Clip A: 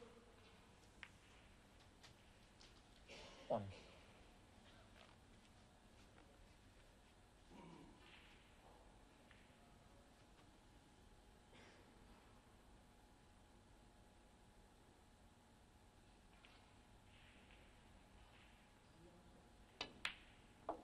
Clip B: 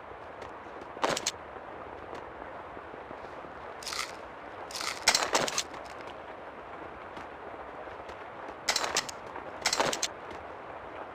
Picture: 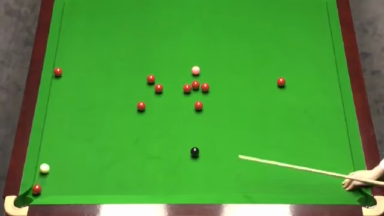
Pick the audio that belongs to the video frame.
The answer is A